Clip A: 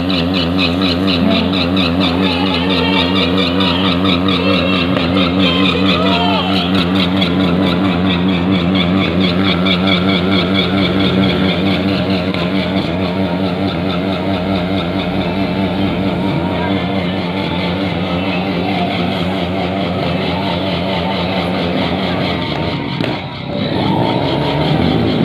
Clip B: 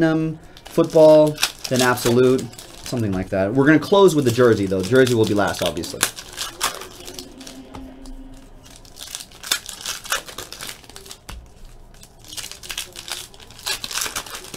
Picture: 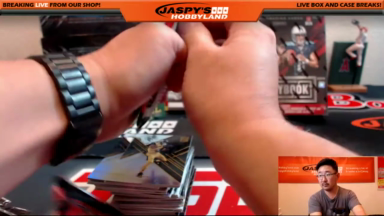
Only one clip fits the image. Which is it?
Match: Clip B